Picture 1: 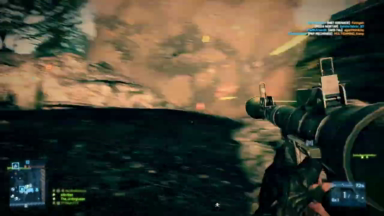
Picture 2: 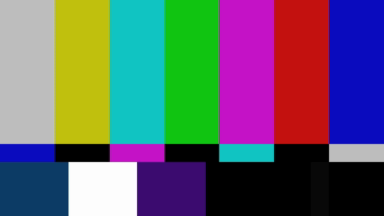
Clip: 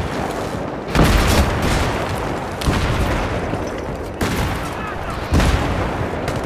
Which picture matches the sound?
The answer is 1